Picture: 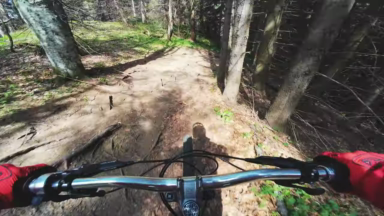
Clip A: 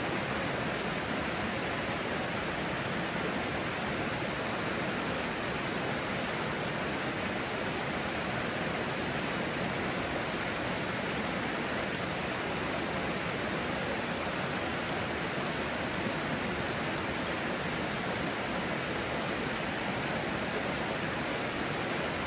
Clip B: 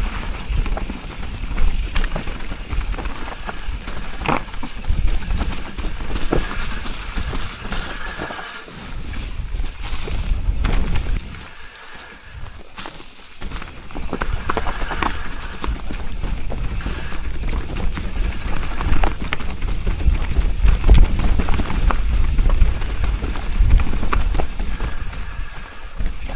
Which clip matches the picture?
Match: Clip B